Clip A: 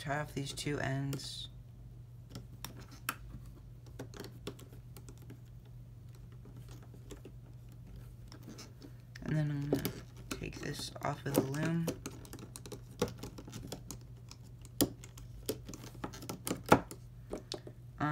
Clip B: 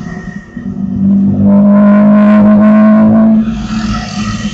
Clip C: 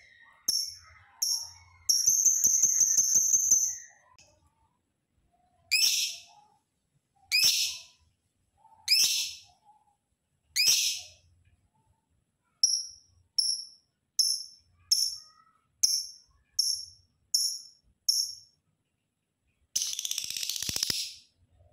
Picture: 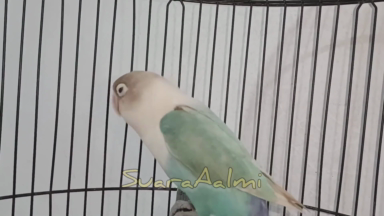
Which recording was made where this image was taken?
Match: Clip C